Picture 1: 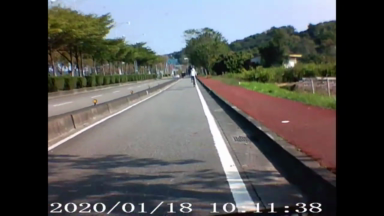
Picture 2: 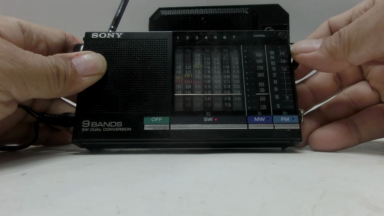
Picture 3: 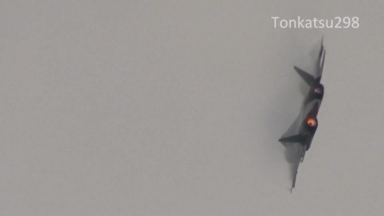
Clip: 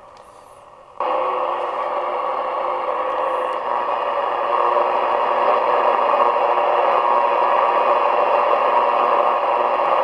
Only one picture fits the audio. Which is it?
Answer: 2